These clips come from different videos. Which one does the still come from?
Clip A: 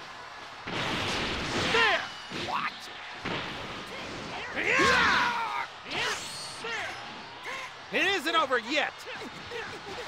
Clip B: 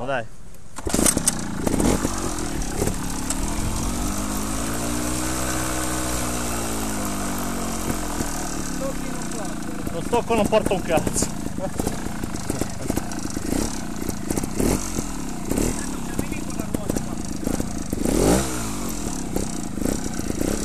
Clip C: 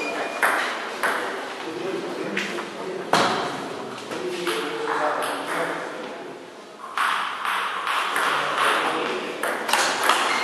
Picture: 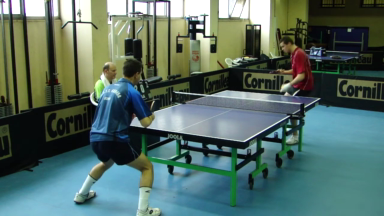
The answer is C